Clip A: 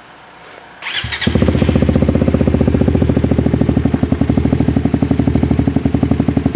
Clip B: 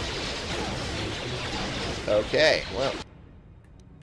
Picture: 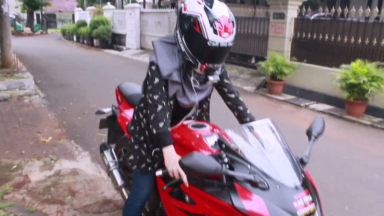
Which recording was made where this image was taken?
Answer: A